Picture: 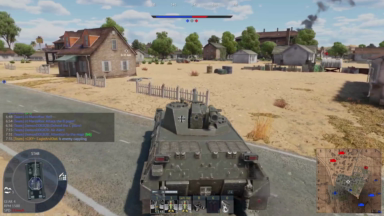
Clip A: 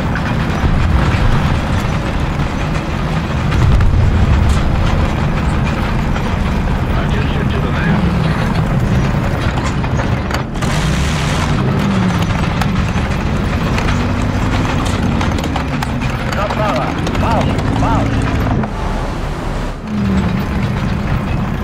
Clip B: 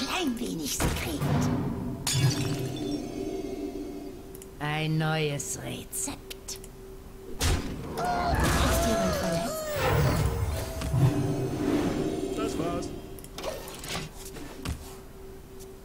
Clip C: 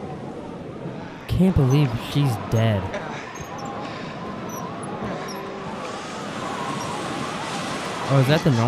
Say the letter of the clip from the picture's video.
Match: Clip A